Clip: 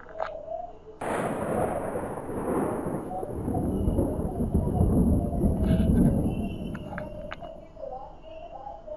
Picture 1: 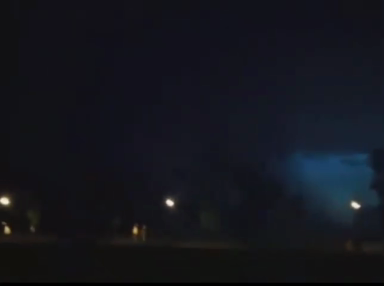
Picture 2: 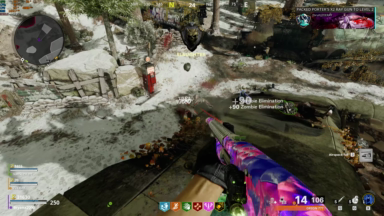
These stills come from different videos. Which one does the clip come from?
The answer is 1